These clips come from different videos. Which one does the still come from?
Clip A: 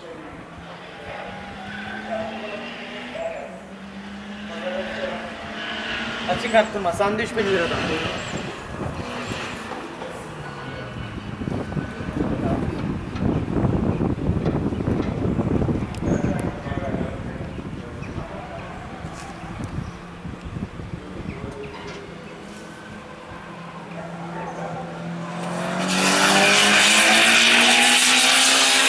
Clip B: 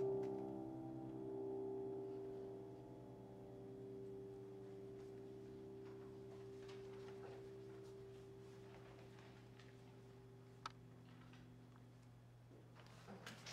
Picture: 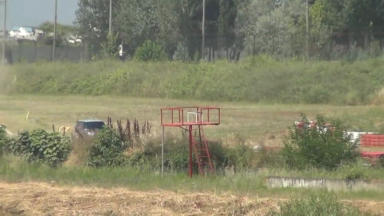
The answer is A